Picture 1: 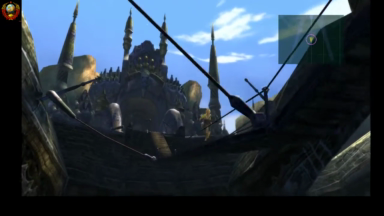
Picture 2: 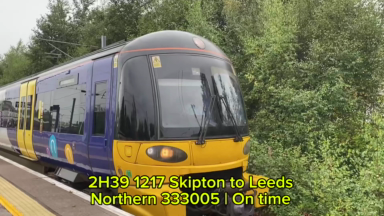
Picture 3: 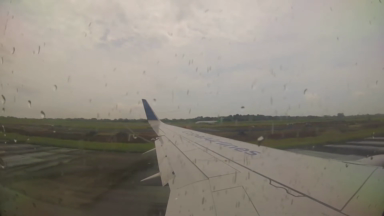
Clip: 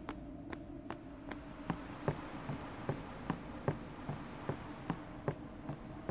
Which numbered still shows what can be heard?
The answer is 1